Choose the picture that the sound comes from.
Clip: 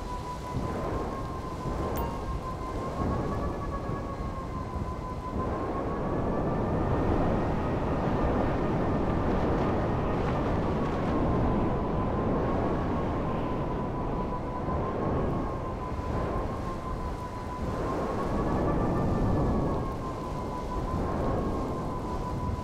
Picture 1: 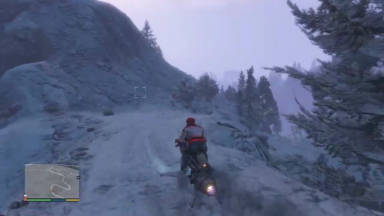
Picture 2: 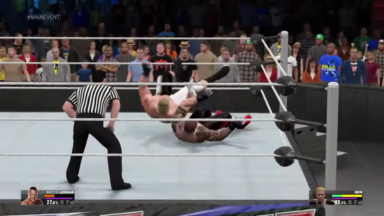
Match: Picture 1